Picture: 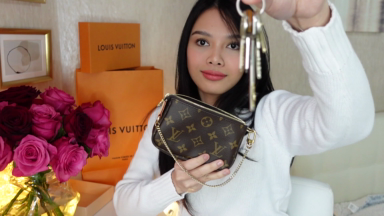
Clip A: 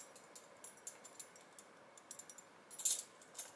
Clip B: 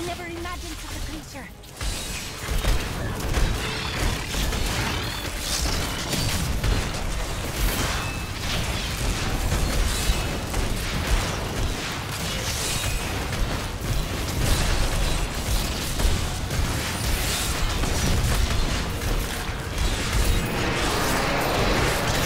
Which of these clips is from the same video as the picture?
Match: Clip A